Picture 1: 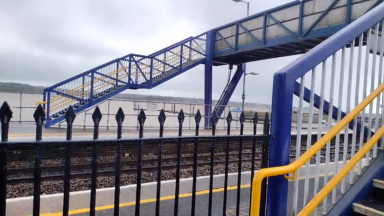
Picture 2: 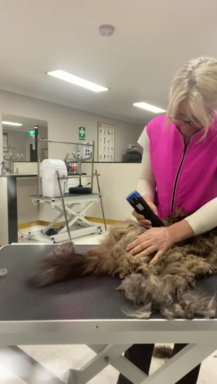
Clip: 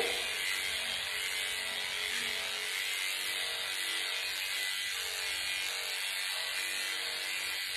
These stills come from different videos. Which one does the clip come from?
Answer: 2